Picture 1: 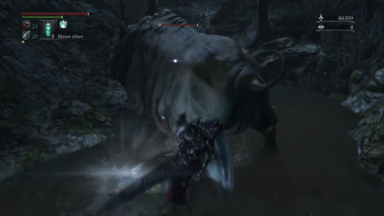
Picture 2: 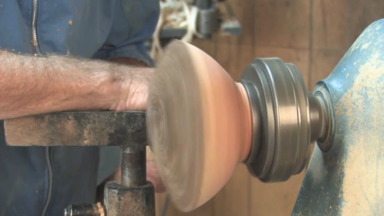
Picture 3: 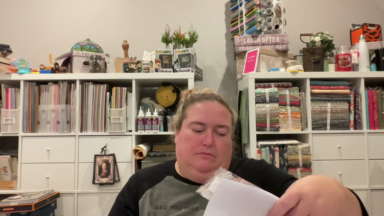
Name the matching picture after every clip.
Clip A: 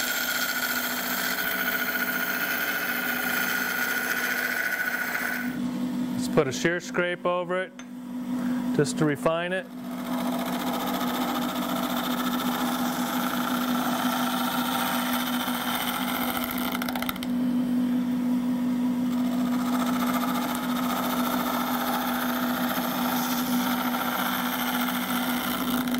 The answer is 2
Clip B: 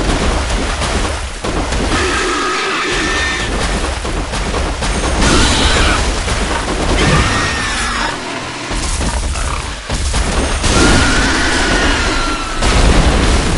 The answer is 1